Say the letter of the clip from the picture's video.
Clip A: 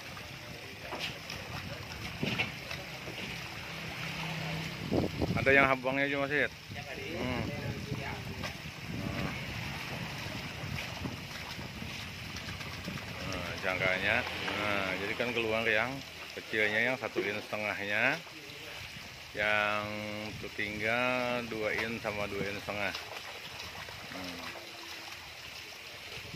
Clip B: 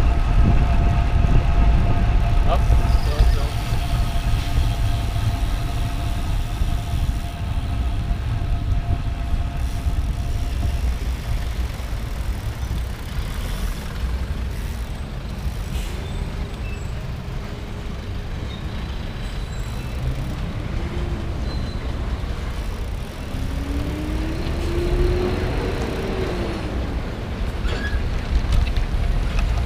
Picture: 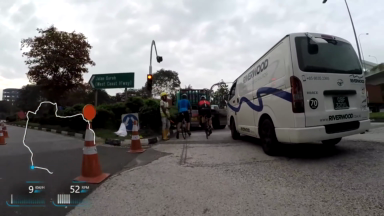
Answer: B